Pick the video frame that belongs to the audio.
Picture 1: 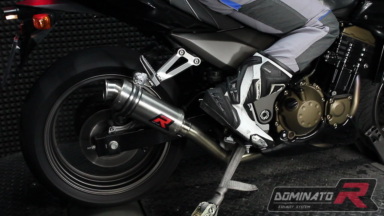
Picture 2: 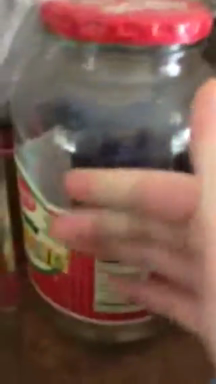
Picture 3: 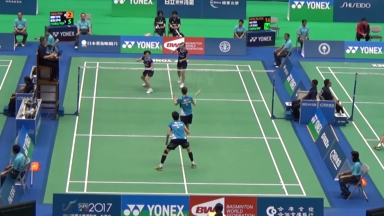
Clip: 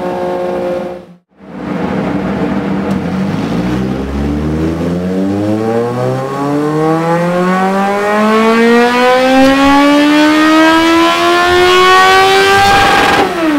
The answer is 1